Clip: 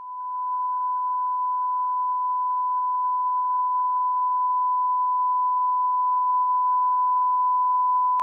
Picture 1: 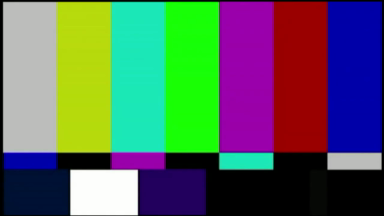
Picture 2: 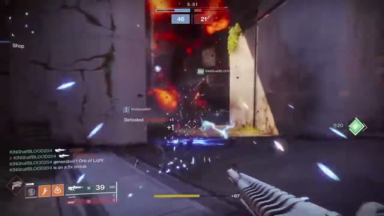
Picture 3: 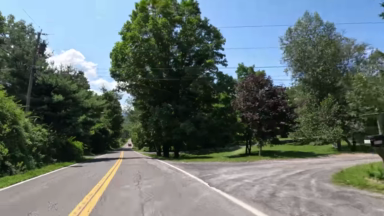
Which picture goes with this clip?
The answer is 1